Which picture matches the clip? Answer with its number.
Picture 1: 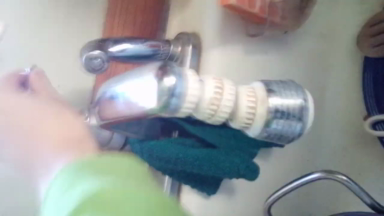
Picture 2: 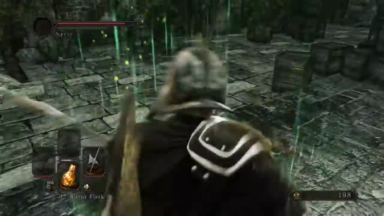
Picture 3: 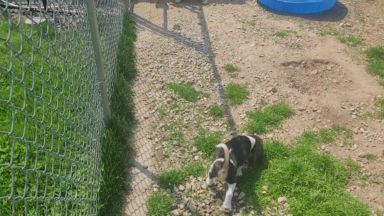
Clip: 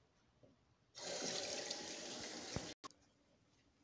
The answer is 1